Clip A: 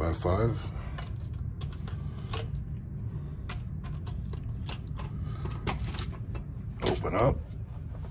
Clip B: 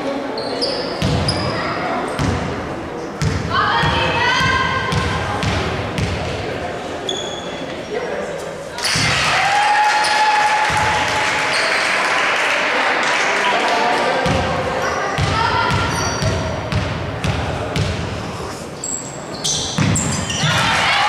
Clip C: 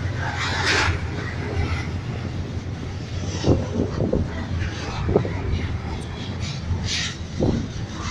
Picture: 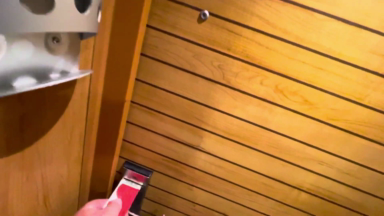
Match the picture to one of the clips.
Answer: A